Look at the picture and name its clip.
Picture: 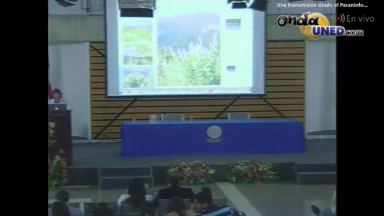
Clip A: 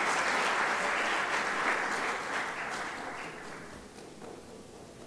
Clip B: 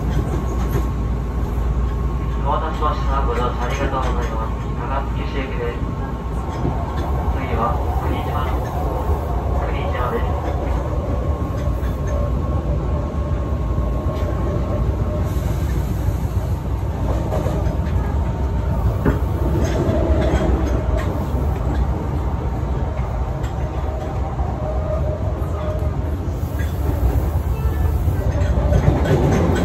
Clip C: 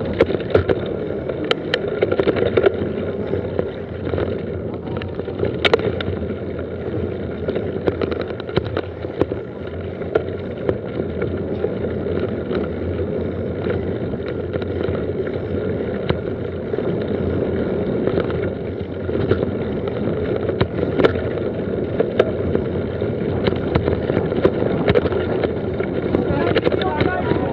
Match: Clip A